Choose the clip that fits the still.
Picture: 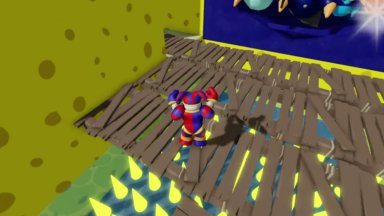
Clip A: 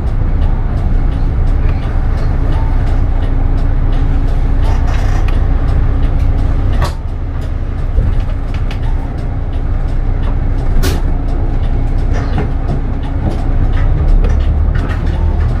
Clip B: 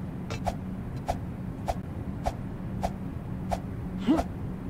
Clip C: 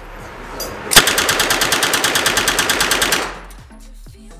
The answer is B